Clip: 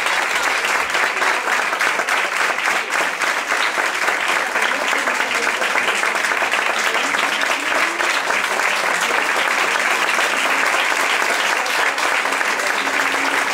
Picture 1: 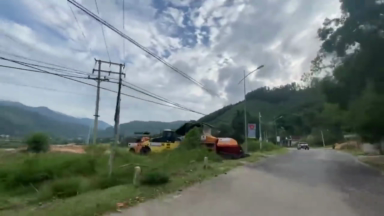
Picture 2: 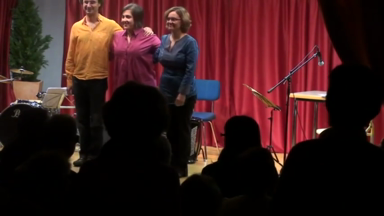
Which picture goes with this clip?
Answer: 2